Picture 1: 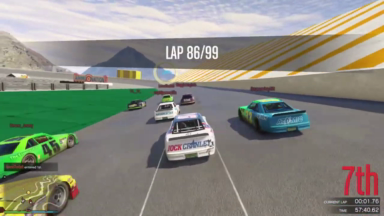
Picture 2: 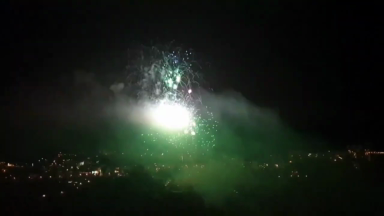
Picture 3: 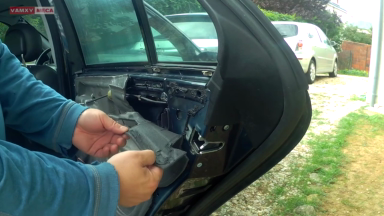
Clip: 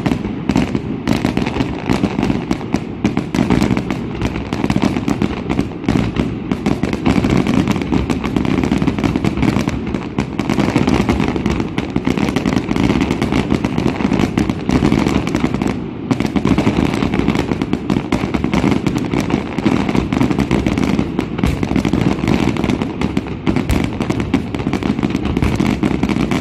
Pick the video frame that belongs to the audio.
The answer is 2